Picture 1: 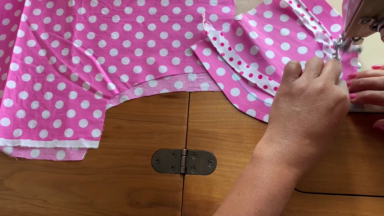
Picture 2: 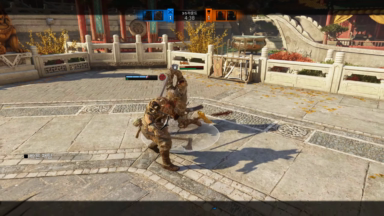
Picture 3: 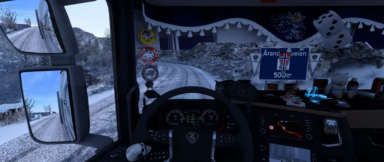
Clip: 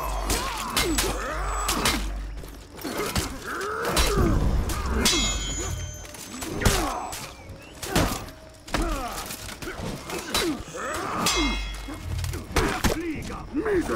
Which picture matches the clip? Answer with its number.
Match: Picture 2